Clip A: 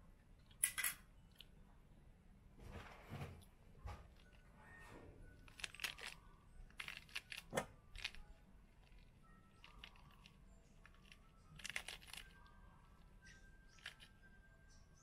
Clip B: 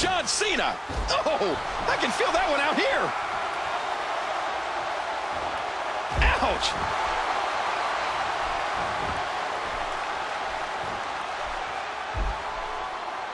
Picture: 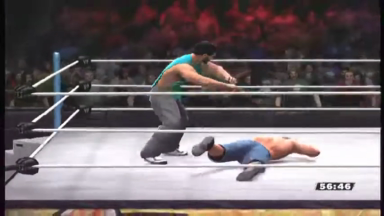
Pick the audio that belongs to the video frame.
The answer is B